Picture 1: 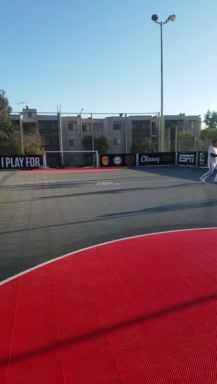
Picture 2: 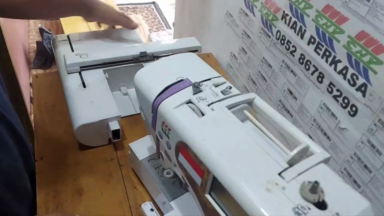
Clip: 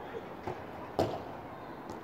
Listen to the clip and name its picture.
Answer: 1